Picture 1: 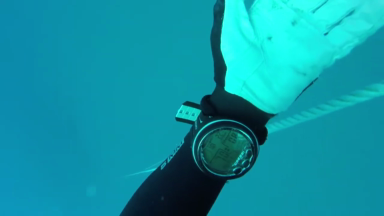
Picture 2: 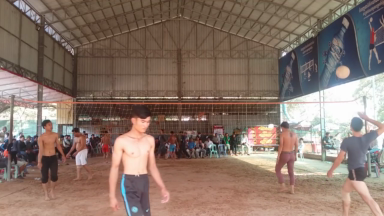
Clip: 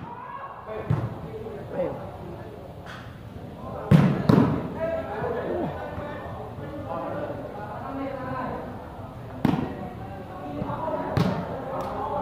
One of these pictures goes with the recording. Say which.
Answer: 2